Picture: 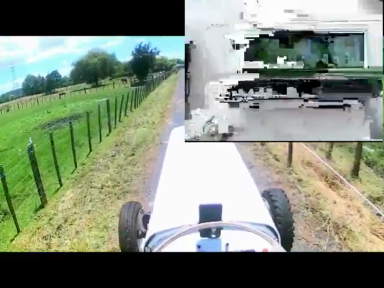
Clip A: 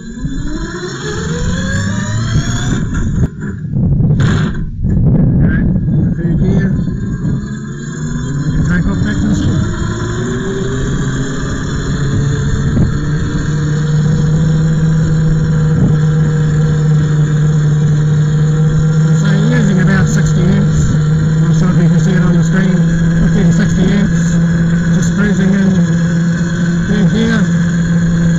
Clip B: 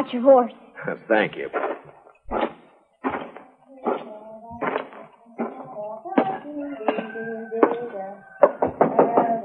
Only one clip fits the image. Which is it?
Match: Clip A